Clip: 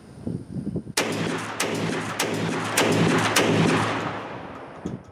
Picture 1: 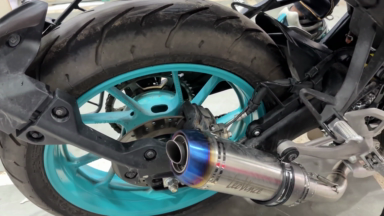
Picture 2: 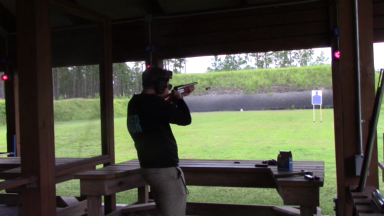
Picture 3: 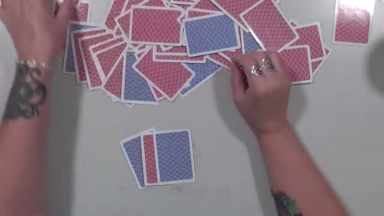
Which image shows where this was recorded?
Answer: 2